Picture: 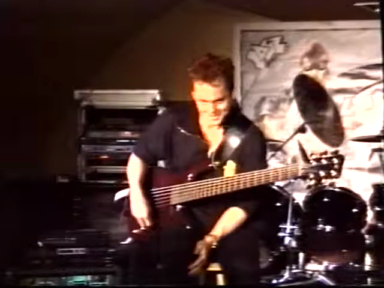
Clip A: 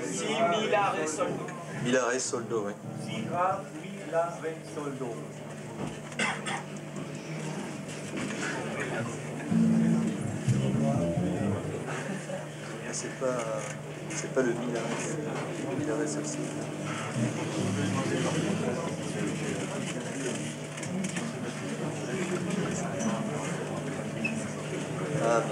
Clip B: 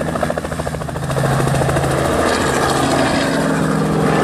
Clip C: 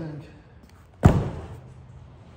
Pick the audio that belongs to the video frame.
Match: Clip A